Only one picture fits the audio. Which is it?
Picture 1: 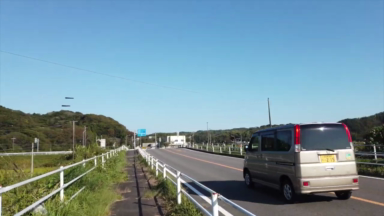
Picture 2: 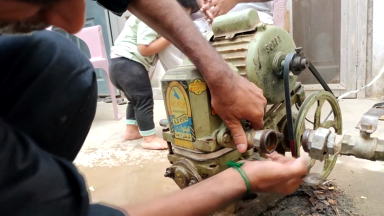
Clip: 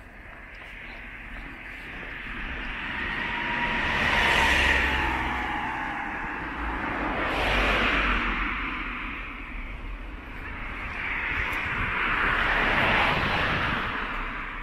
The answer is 1